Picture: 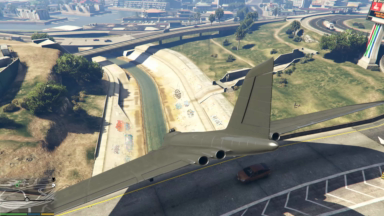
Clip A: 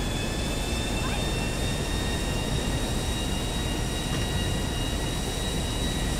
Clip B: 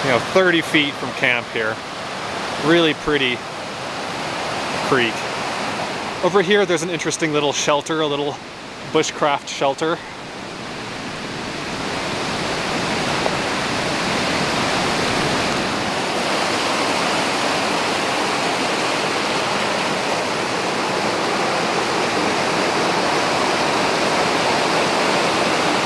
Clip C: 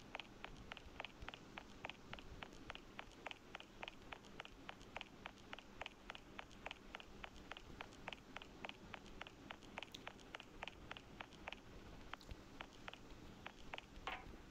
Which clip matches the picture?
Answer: A